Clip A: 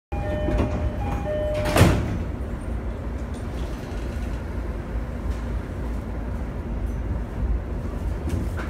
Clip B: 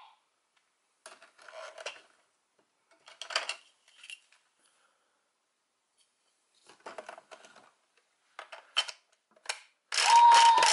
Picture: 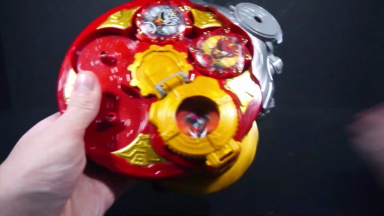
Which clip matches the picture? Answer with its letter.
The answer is B